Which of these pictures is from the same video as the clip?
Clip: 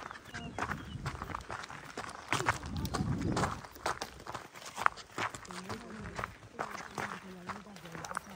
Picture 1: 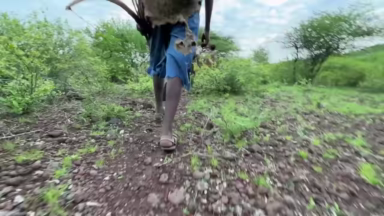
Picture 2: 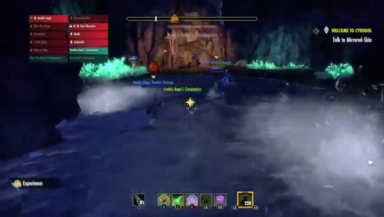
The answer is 1